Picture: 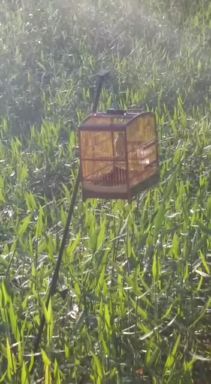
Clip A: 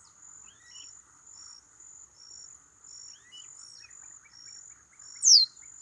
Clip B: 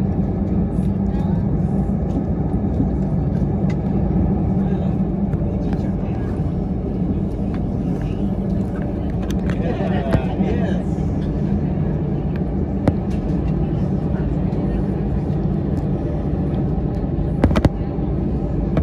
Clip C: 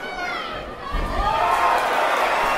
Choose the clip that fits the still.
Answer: A